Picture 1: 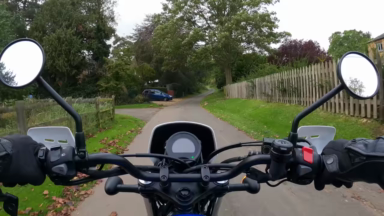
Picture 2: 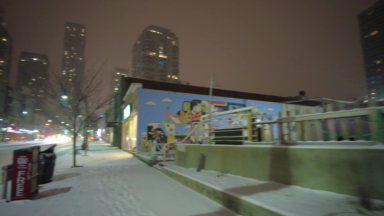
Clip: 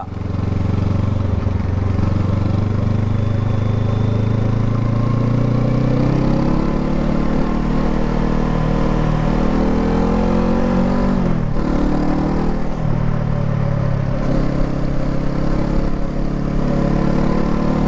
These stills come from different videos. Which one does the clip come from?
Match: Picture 1